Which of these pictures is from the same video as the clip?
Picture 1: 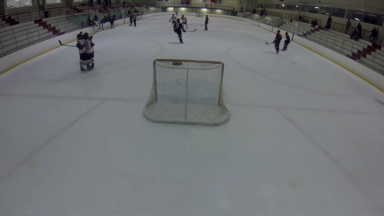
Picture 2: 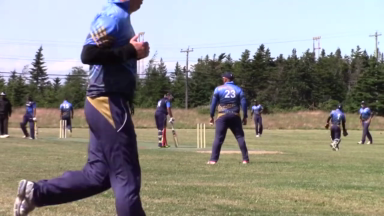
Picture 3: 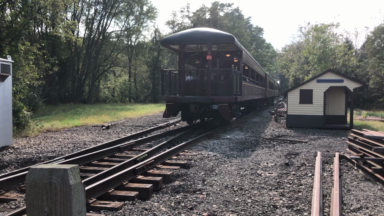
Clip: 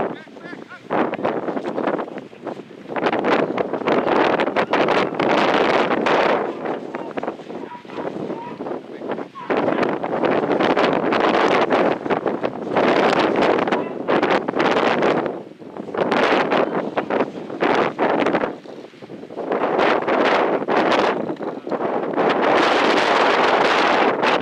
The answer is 2